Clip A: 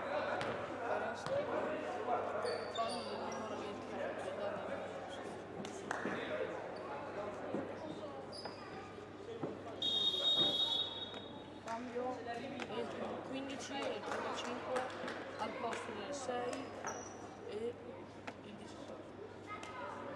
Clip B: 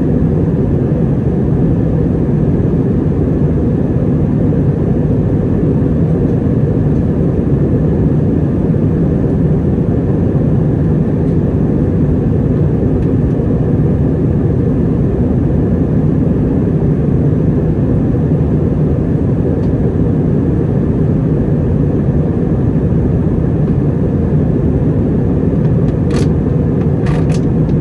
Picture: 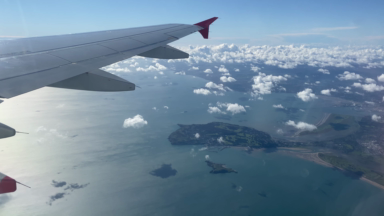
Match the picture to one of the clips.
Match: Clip B